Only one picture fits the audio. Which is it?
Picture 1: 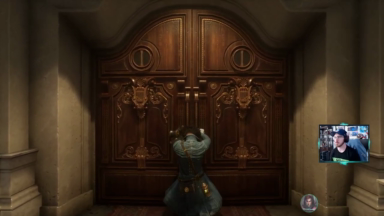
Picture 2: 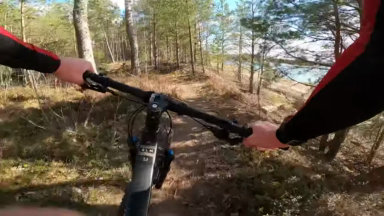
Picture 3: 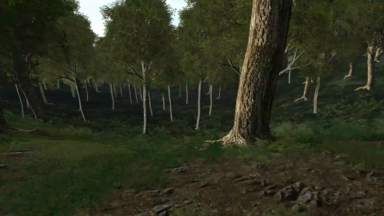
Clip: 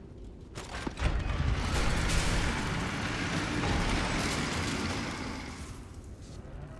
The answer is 1